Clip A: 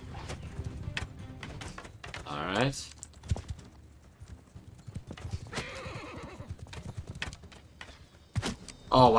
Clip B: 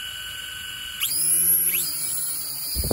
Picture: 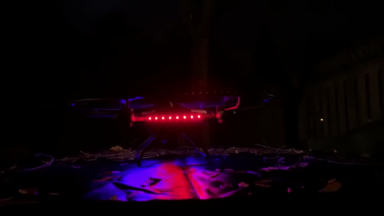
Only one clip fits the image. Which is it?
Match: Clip B